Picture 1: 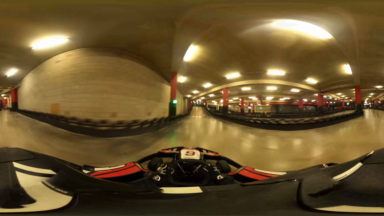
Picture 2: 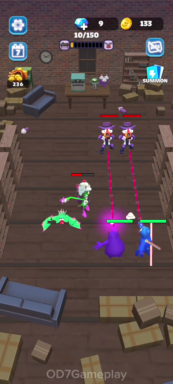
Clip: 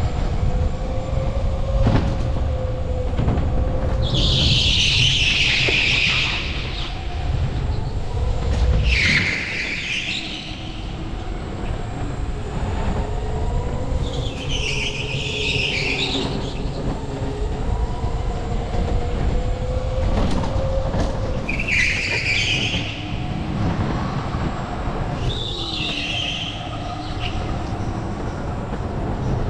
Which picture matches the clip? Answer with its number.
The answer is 1